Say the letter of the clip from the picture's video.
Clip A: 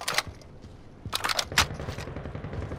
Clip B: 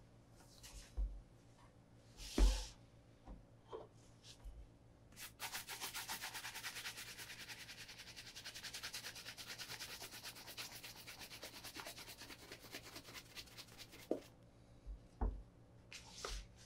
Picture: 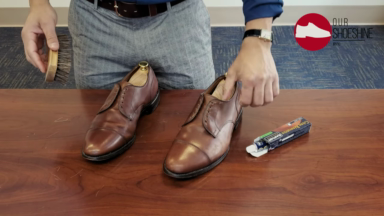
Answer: B